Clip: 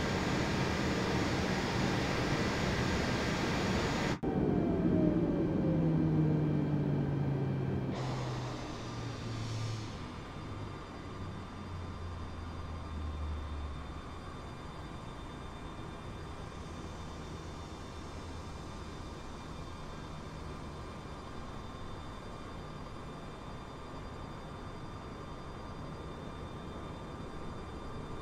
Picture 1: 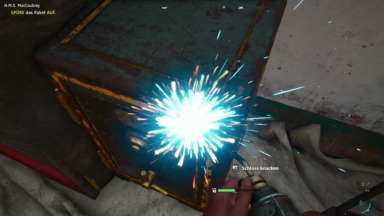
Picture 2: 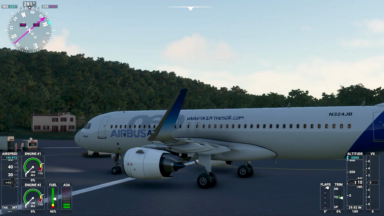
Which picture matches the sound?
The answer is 2